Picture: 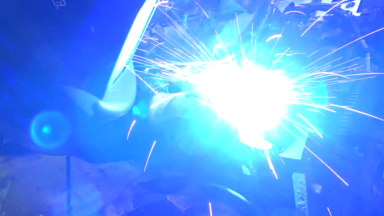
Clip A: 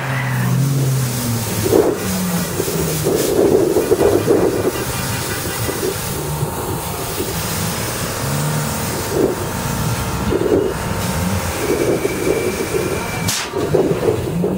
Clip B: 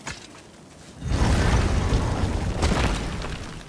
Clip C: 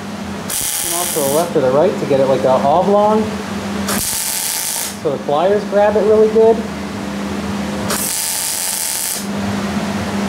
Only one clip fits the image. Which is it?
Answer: C